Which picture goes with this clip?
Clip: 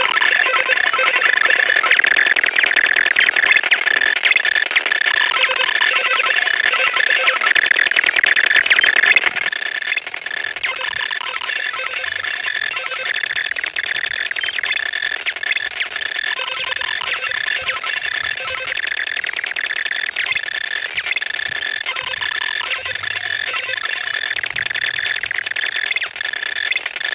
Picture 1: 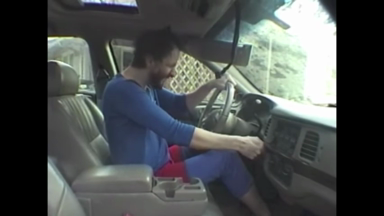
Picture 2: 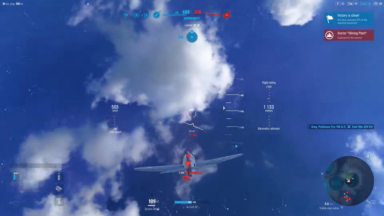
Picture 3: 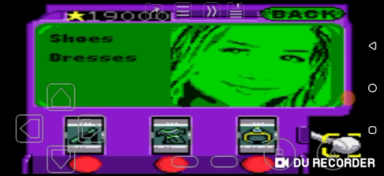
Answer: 3